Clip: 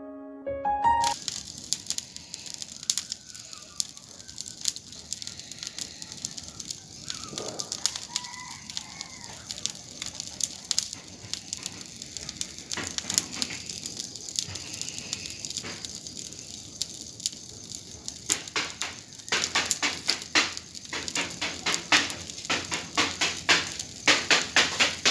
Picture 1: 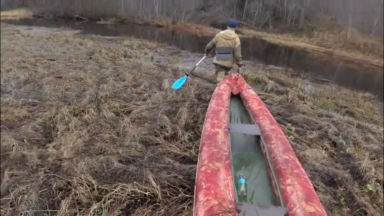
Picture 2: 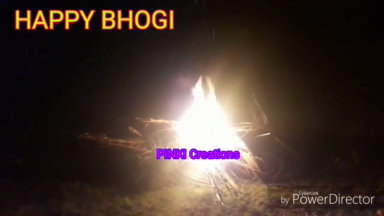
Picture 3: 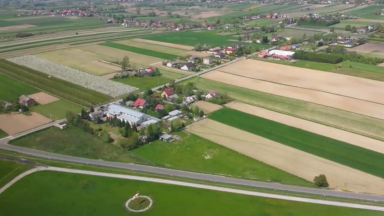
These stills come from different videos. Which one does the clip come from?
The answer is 2